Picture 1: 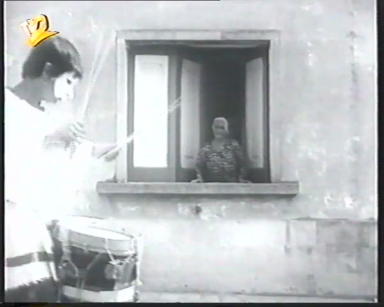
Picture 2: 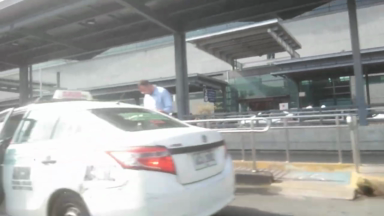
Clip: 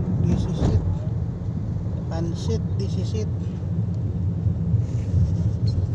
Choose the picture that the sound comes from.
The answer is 2